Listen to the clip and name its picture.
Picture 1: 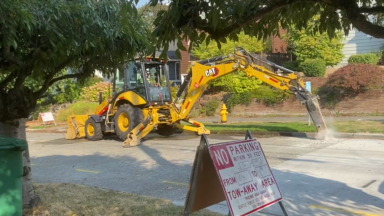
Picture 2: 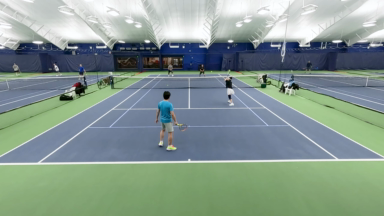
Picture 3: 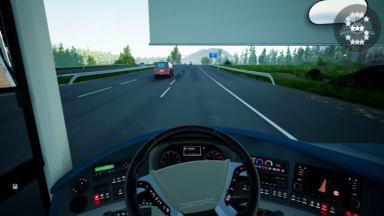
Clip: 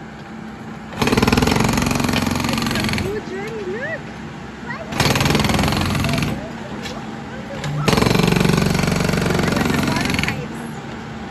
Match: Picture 1